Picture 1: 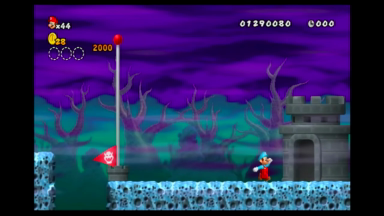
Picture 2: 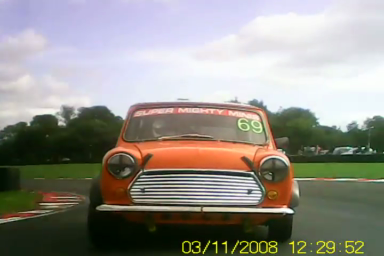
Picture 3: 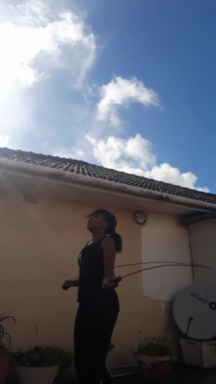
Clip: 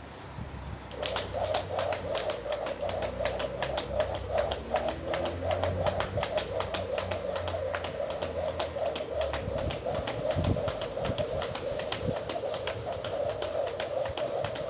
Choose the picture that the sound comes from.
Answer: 3